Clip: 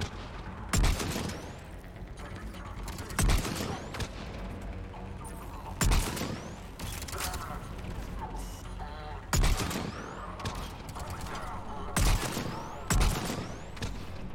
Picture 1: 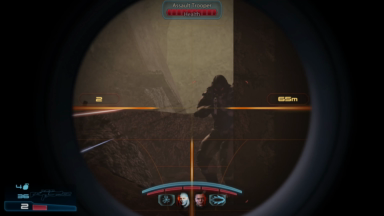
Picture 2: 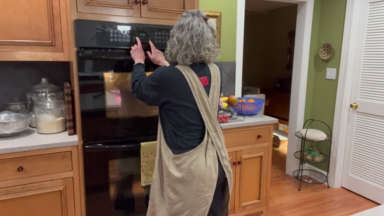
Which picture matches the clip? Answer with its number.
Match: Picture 1